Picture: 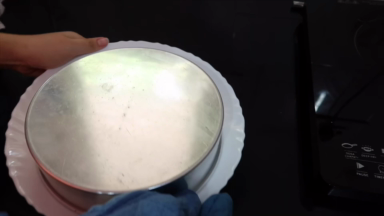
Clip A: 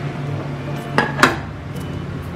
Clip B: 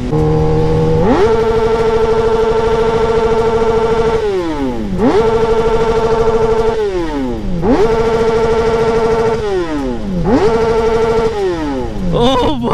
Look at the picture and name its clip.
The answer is A